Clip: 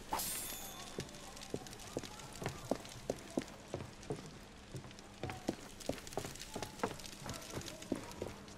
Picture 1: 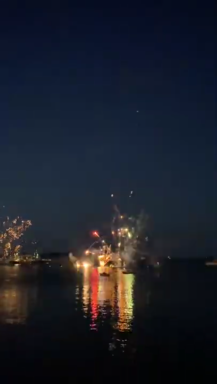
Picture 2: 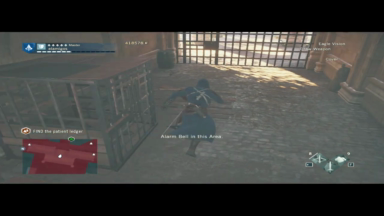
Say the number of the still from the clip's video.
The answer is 2